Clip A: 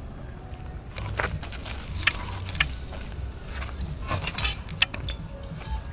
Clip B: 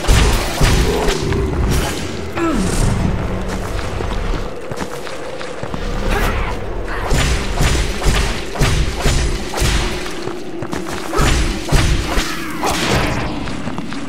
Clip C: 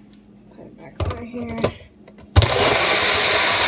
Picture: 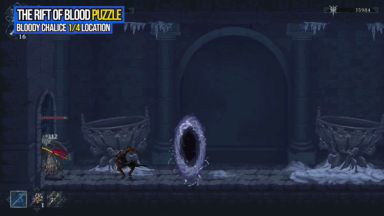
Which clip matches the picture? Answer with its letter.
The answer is B